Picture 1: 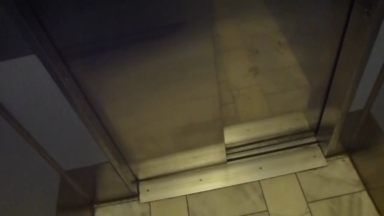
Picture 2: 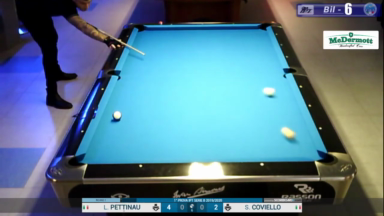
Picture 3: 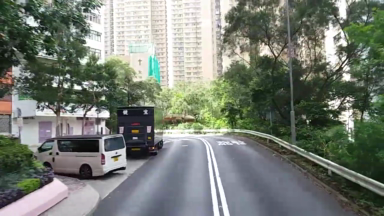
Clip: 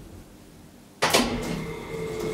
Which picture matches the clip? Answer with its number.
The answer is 1